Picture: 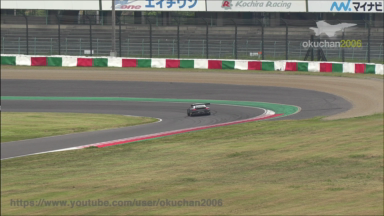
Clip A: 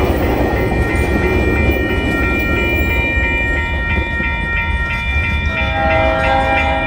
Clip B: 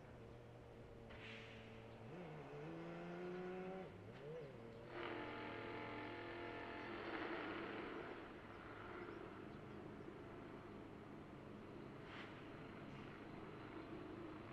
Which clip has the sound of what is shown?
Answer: B